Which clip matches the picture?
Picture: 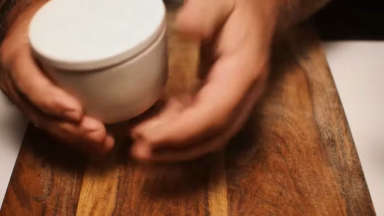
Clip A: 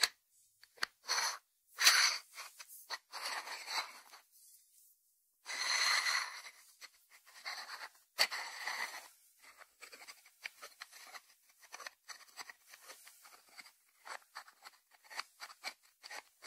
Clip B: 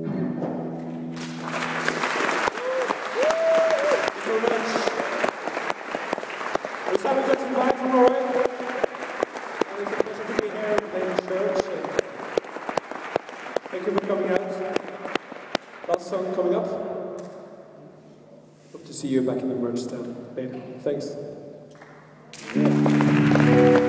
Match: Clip A